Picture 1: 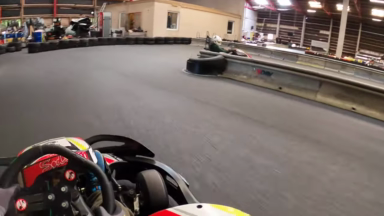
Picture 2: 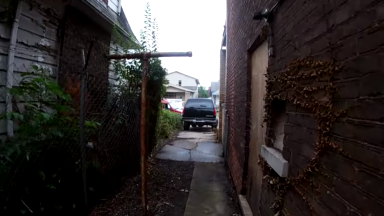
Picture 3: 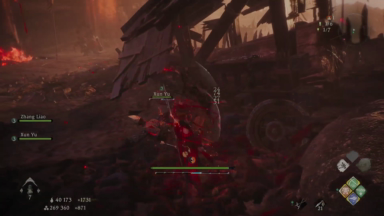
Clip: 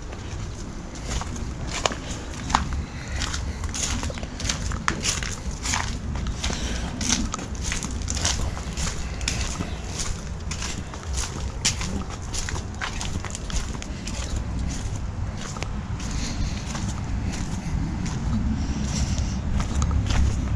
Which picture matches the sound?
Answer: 2